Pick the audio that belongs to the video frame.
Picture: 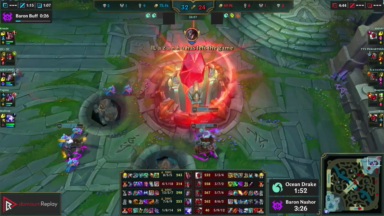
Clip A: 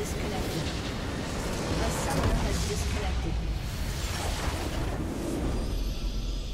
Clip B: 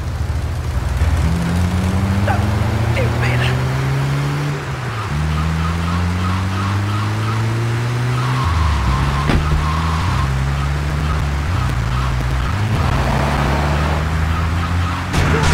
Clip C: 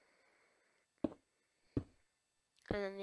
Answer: A